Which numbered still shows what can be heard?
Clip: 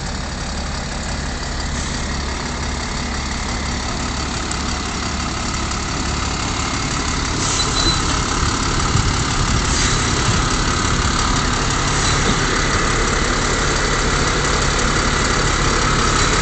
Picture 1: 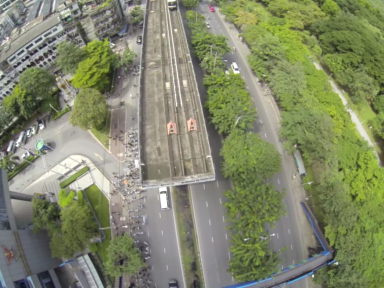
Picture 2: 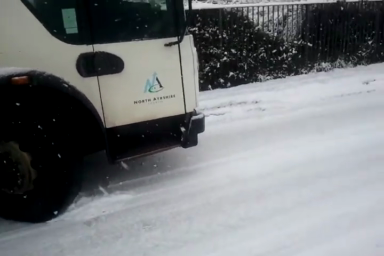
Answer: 2